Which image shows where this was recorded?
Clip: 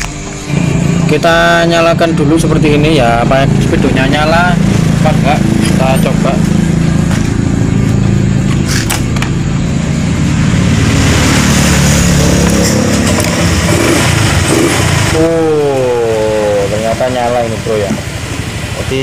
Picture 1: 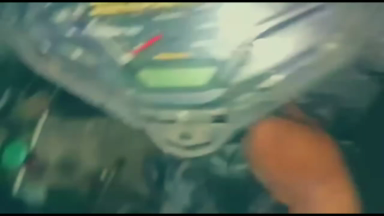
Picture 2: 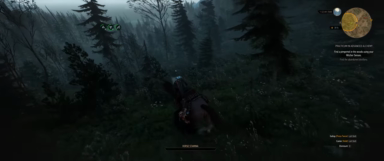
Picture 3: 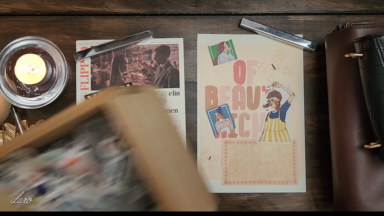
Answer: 1